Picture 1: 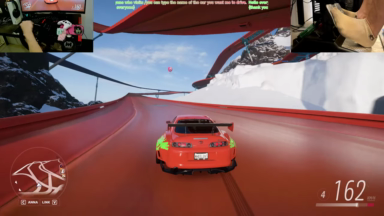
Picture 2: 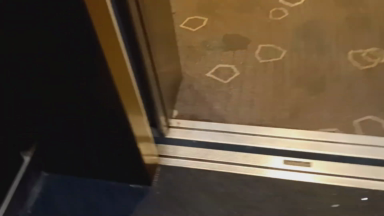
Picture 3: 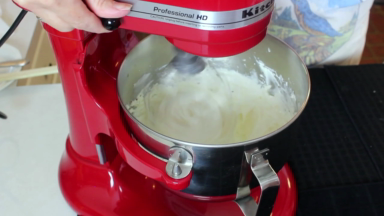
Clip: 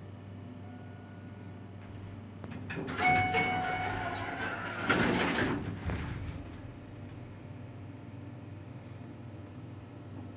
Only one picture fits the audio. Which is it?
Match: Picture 2